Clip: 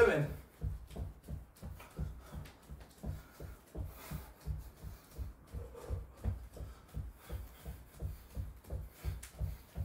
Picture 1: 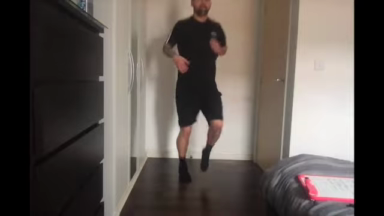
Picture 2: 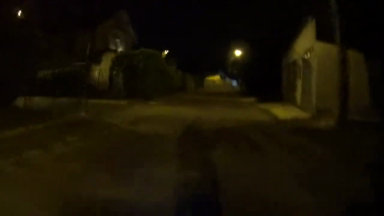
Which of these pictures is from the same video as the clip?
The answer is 1